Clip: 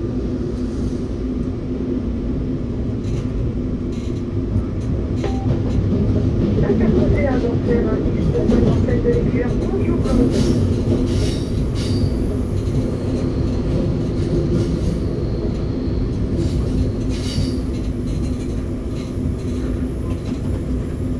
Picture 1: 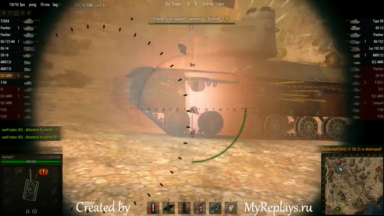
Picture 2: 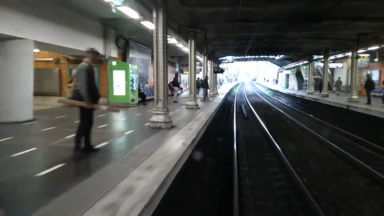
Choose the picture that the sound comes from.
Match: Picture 2